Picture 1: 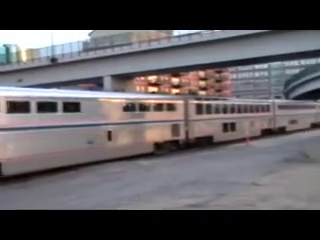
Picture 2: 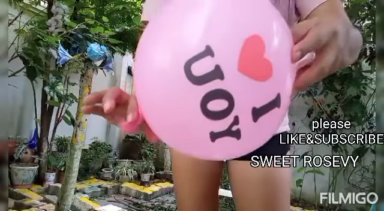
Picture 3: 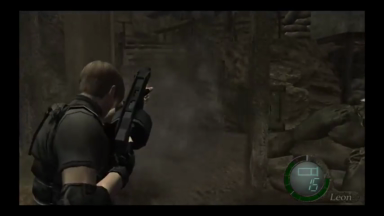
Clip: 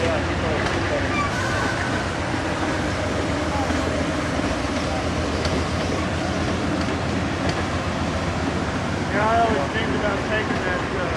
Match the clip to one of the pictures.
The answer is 1